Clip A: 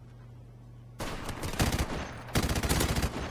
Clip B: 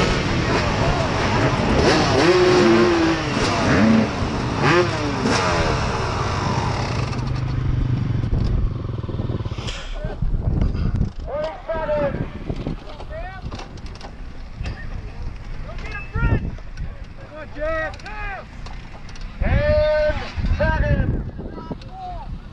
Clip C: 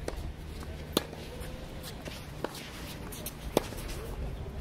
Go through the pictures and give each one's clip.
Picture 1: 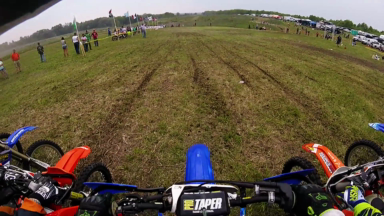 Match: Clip B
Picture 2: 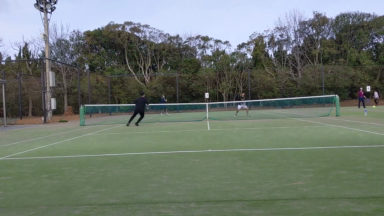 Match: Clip C